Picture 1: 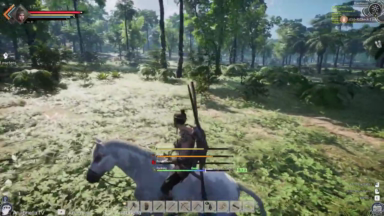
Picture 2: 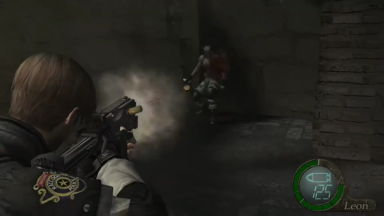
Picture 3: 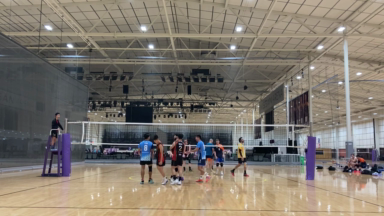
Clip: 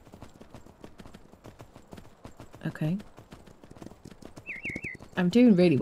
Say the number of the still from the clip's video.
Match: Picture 1